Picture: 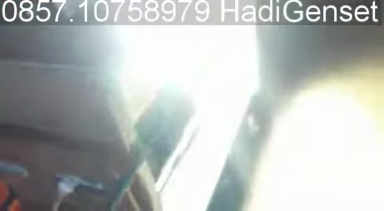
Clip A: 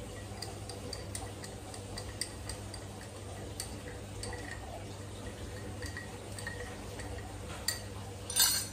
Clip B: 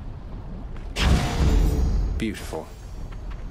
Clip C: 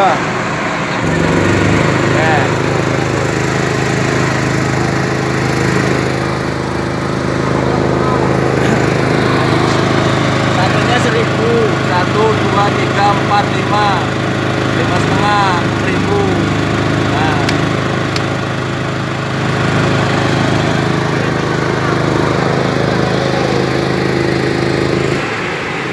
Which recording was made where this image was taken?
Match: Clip C